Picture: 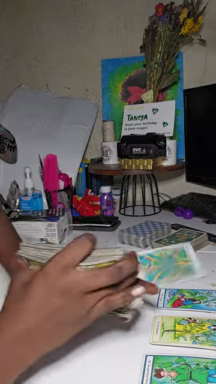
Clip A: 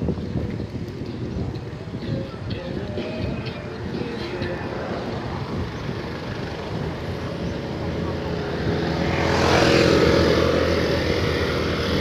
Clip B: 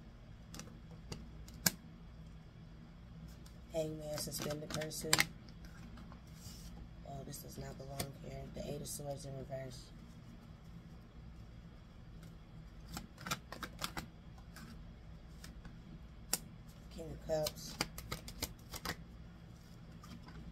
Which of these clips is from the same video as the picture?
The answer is B